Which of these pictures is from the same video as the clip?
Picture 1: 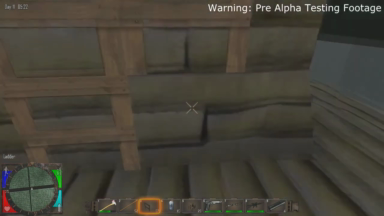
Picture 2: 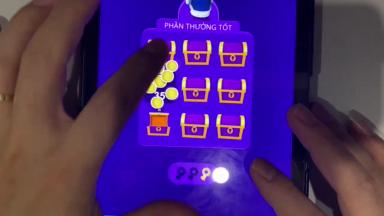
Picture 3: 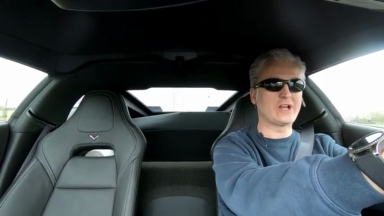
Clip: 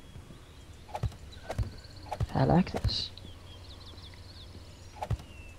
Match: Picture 1